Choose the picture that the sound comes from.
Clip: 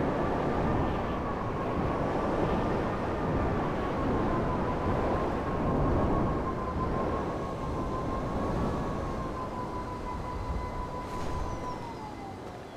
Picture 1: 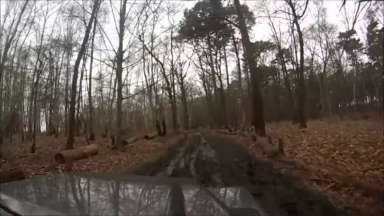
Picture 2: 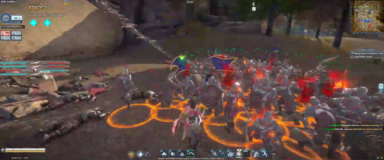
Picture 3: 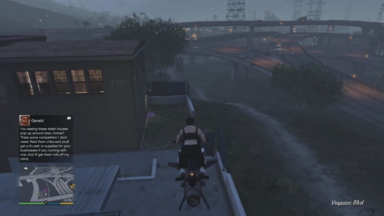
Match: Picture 3